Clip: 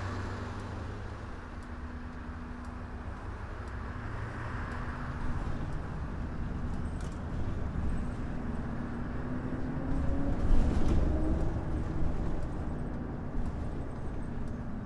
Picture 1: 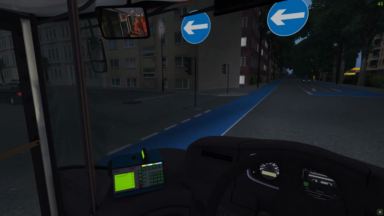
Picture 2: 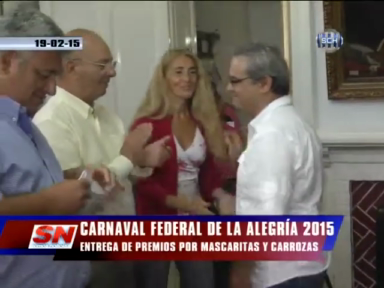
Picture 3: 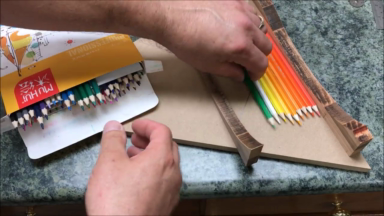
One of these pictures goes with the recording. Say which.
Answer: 1